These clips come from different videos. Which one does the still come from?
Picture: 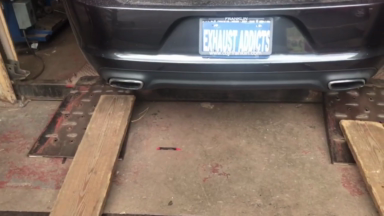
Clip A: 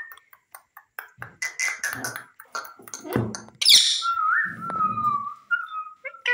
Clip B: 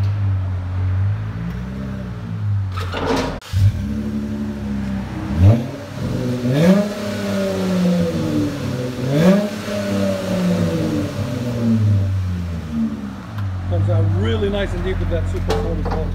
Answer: B